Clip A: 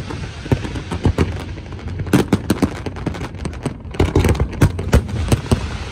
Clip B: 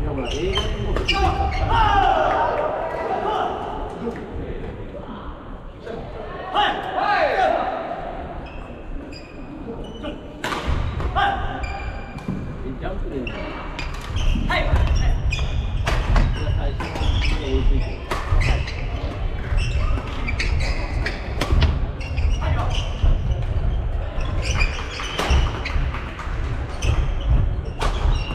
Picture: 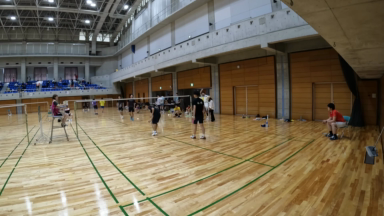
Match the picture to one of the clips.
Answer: B